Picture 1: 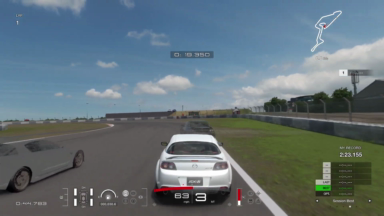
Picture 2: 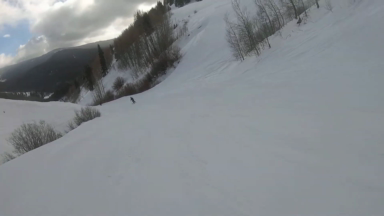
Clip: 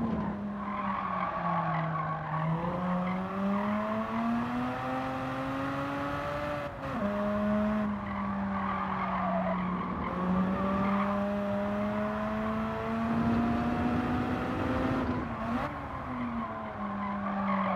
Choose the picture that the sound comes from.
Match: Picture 1